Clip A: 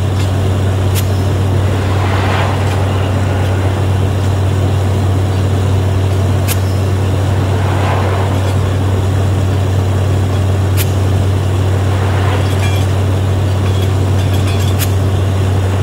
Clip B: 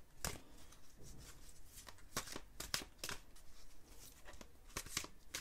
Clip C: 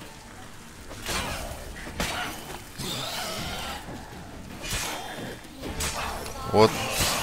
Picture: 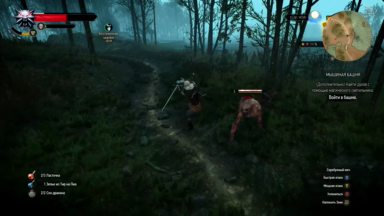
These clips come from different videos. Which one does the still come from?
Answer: C